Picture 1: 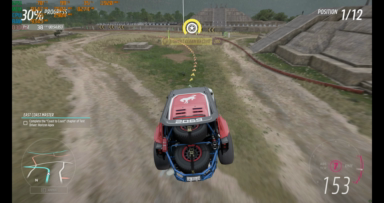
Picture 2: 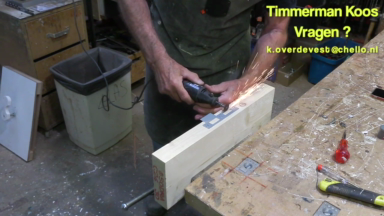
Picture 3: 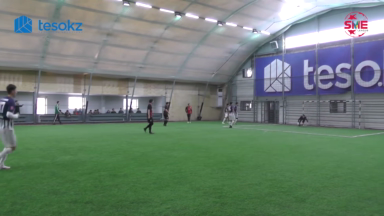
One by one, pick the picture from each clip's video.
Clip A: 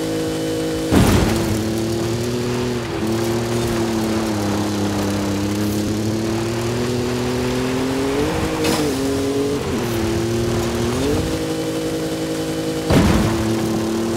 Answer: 1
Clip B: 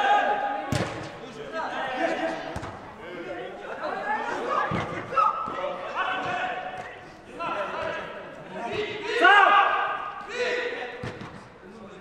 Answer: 3